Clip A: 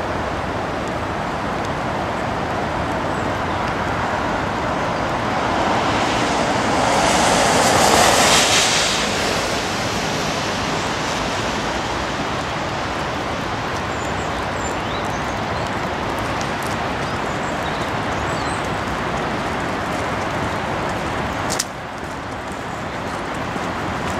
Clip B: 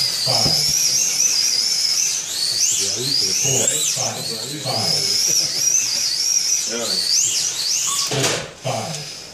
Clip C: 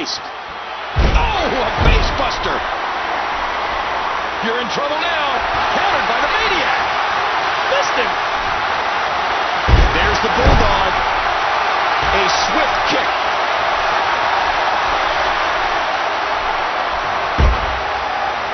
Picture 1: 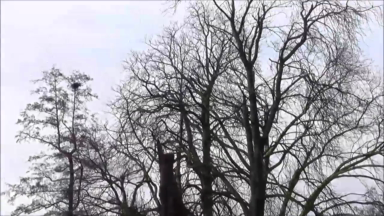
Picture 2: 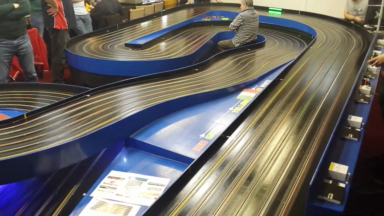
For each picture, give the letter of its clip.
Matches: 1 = A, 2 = B